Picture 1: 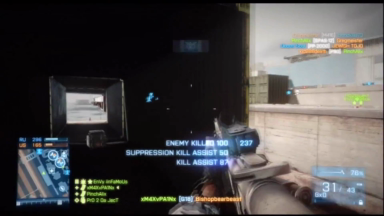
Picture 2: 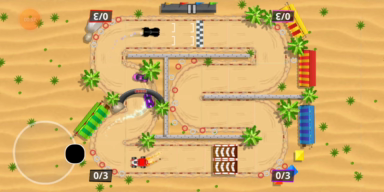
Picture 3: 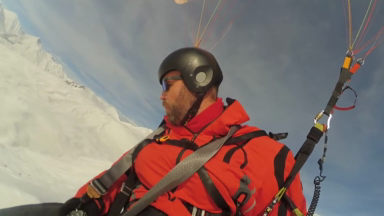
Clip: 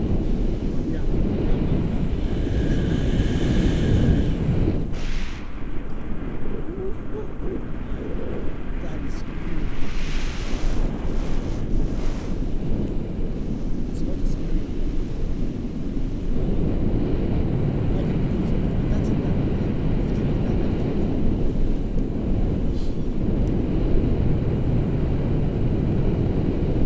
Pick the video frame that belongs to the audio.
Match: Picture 3